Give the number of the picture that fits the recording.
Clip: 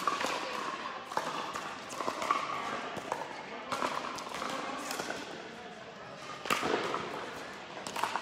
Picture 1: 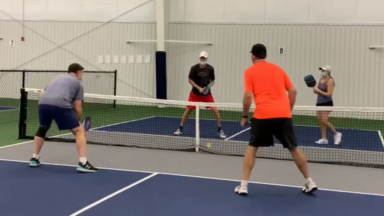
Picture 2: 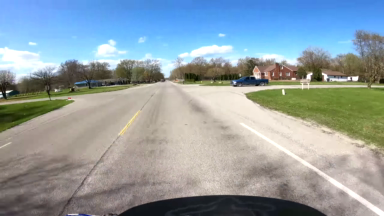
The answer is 1